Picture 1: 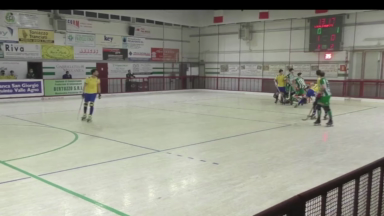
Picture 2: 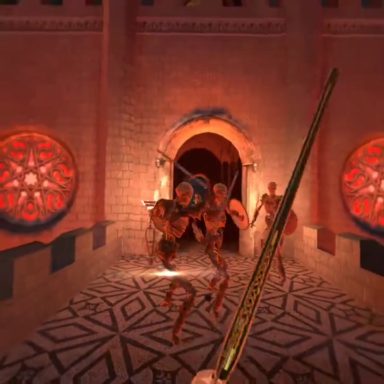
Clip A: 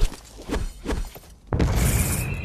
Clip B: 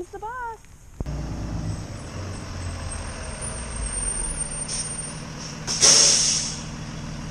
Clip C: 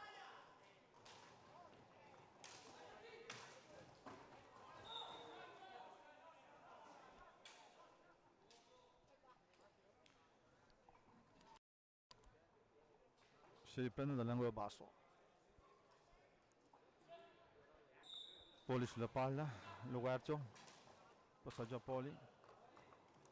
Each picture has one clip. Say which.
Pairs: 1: C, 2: A